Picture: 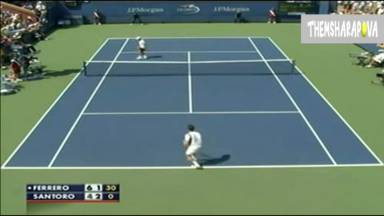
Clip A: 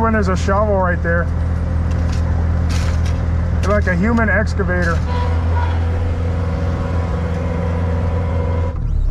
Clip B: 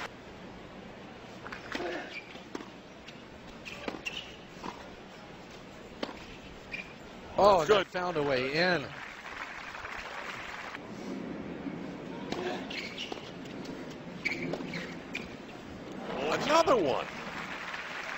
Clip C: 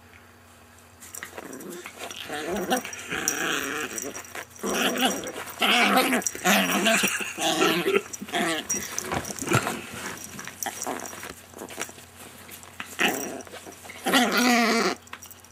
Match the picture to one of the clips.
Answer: B